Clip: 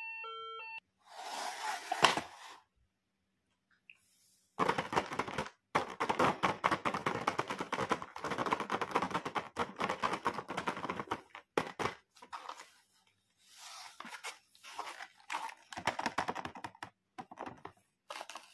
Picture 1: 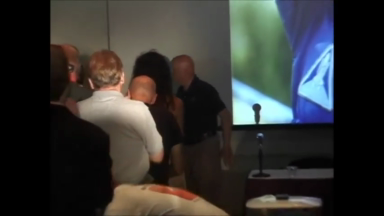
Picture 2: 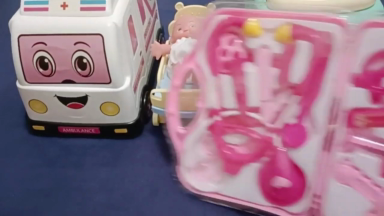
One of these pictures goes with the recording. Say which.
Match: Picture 2